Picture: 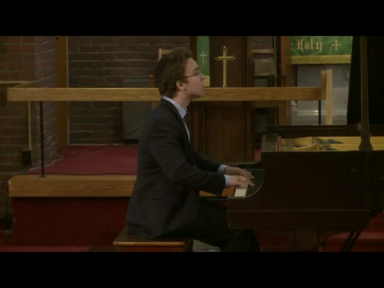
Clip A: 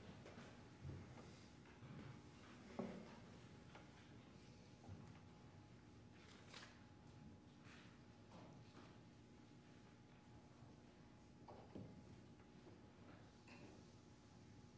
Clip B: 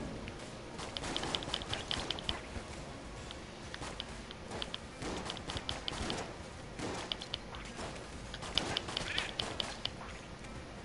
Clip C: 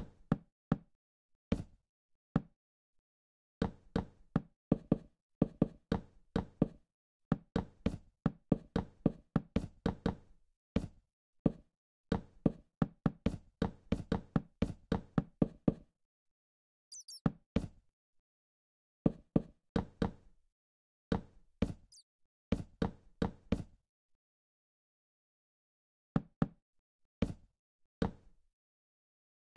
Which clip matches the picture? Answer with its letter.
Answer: A